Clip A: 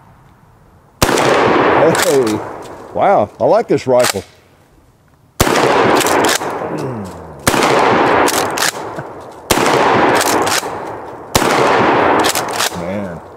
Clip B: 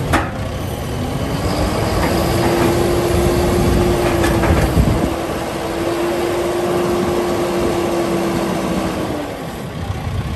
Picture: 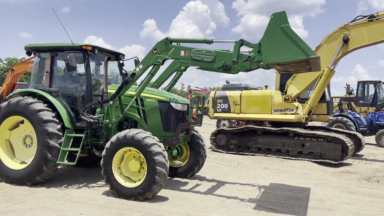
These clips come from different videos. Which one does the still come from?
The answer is B